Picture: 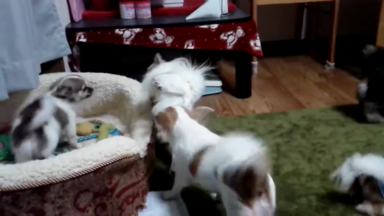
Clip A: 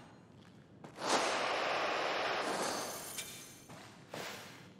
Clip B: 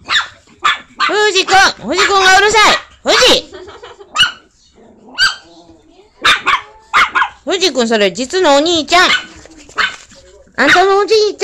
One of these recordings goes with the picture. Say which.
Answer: B